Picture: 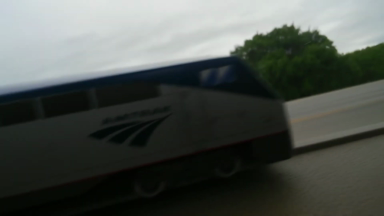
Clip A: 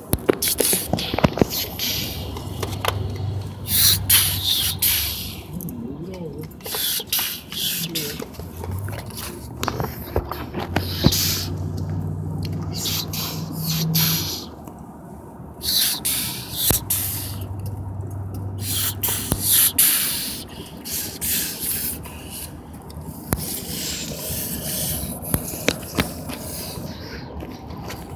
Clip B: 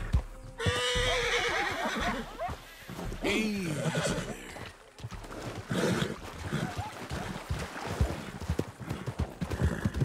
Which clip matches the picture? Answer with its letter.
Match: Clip A